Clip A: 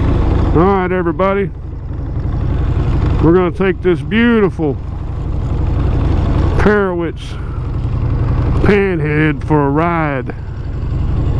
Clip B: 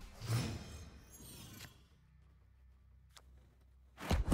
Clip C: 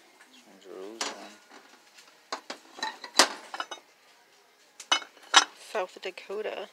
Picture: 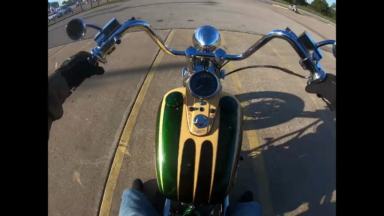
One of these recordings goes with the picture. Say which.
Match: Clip A